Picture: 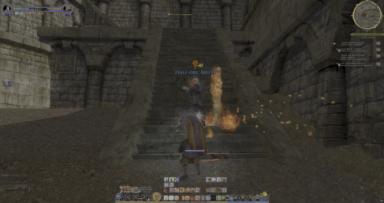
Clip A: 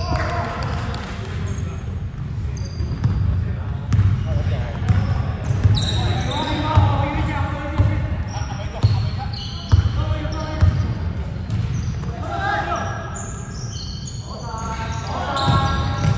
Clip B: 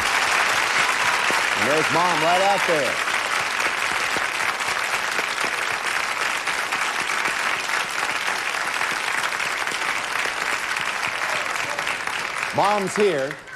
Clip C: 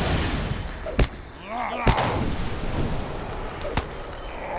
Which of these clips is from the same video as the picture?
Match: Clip C